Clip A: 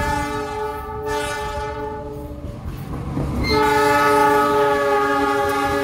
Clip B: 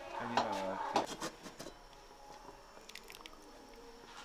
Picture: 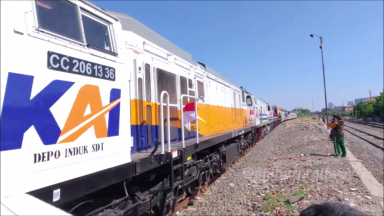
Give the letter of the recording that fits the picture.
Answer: A